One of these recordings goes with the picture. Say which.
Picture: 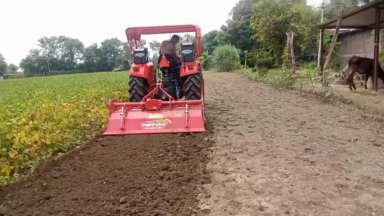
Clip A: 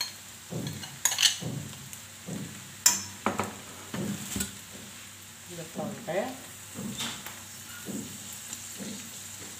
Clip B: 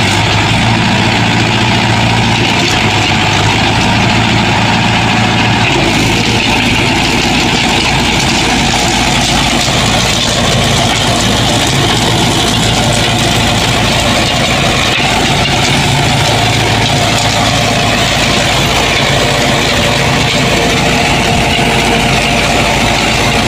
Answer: B